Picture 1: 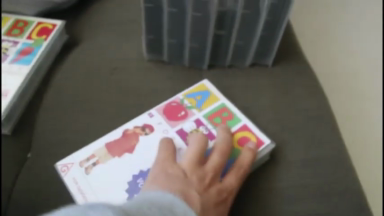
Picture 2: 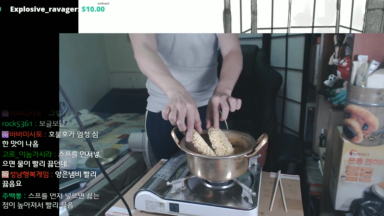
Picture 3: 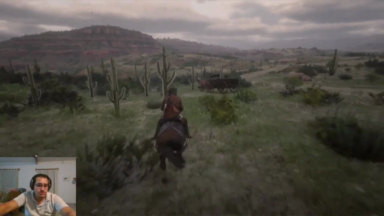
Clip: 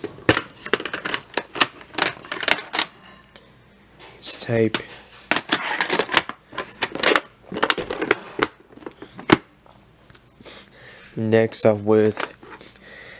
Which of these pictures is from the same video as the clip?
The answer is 1